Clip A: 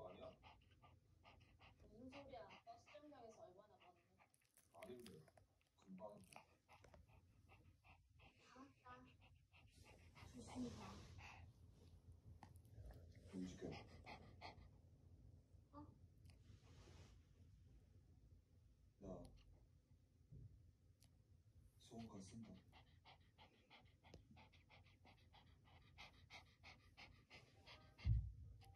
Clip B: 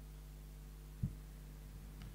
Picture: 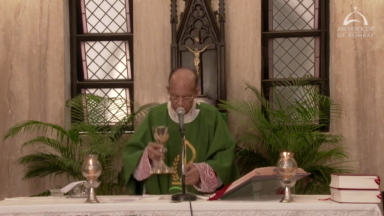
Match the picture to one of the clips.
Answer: B